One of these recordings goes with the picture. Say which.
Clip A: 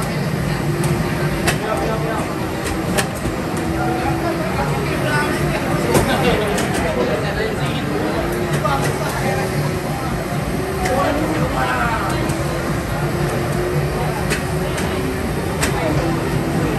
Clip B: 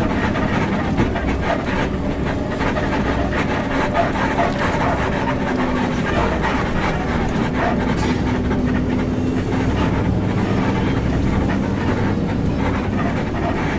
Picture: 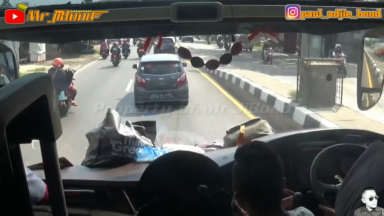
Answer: B